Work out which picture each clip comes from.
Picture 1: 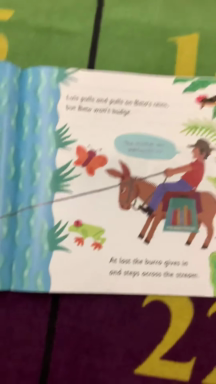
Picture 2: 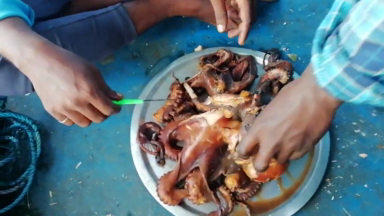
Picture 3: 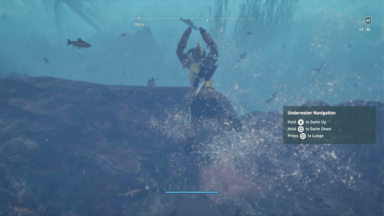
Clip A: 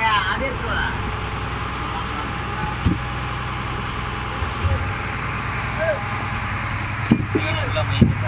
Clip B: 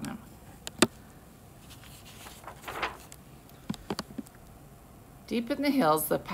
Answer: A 2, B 1